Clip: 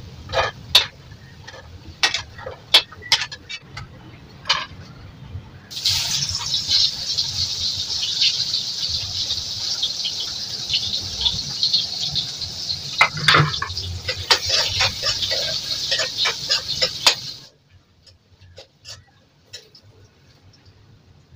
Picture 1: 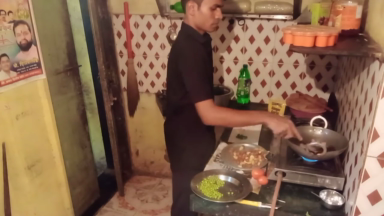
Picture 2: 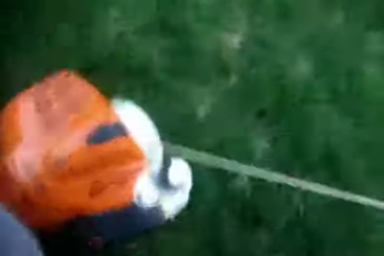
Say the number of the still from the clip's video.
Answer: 1